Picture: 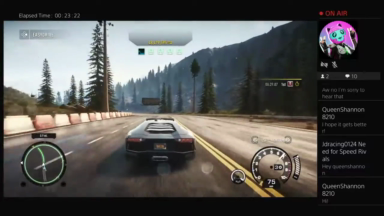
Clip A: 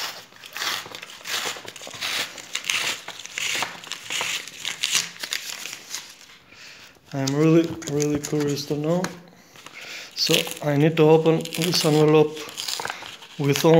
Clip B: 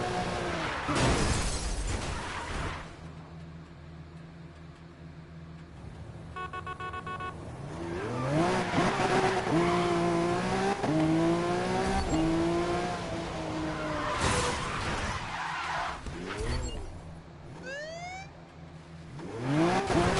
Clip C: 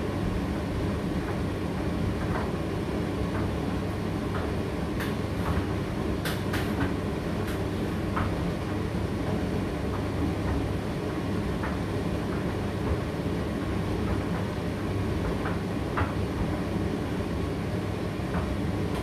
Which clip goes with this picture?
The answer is B